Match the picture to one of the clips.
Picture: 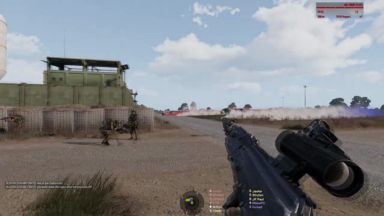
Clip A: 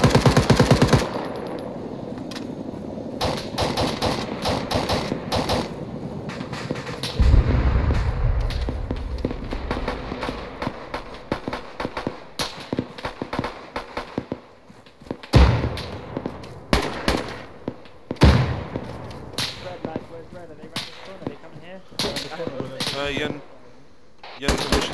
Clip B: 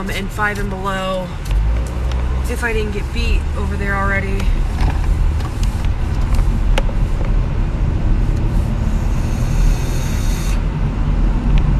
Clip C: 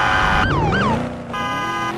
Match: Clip A